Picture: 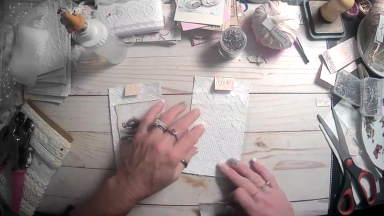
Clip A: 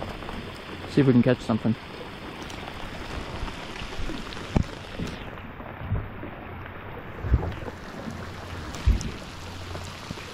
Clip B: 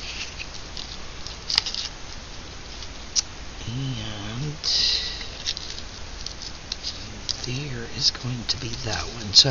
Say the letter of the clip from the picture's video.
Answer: B